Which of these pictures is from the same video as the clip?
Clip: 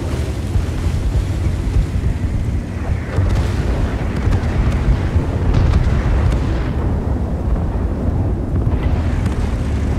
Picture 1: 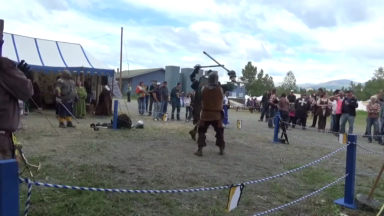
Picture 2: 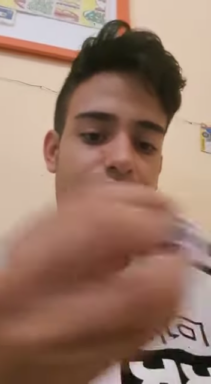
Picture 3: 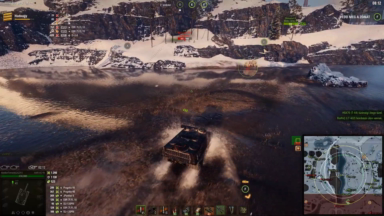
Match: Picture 3